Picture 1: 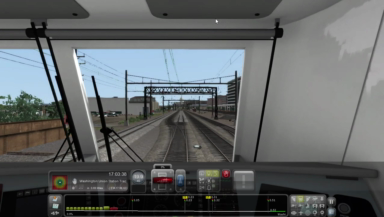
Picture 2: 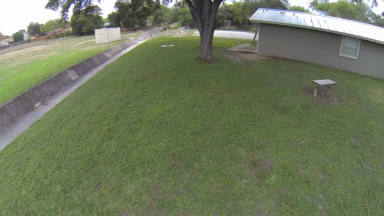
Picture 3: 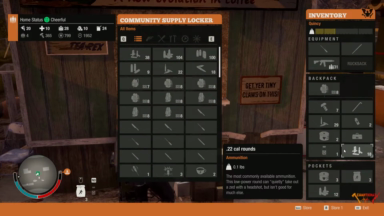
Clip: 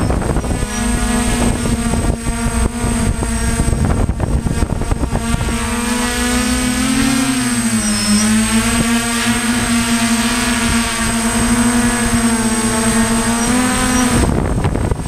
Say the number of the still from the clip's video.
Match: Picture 2